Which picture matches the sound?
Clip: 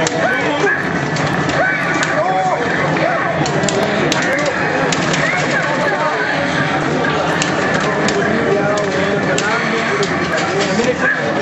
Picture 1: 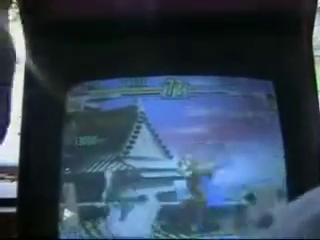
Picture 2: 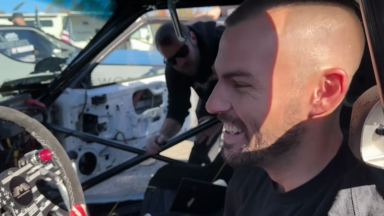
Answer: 1